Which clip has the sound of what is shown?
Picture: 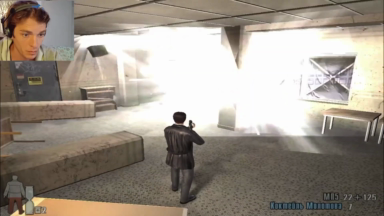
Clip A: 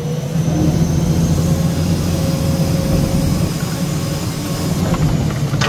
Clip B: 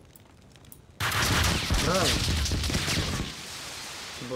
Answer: B